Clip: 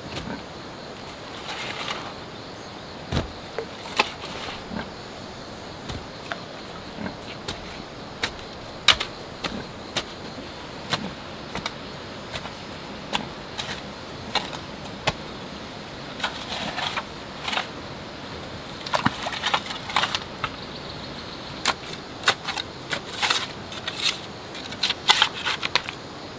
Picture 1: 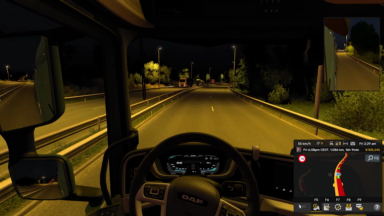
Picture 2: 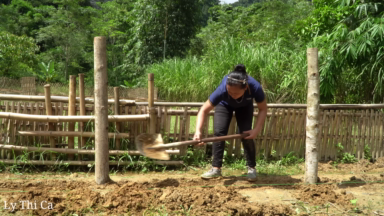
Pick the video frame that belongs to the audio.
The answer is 2